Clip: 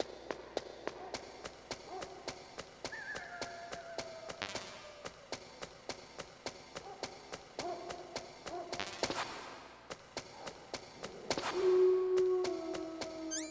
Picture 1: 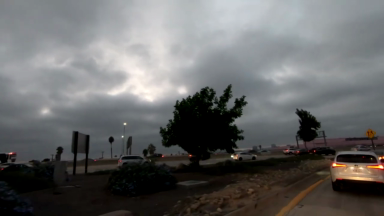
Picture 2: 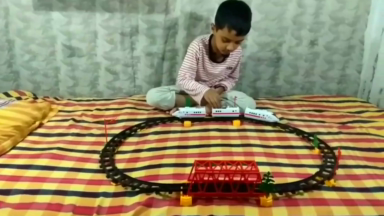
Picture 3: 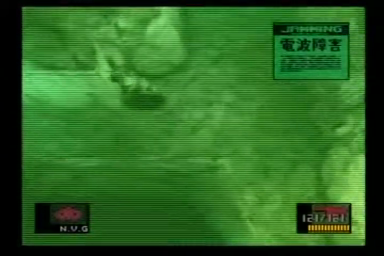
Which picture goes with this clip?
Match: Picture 3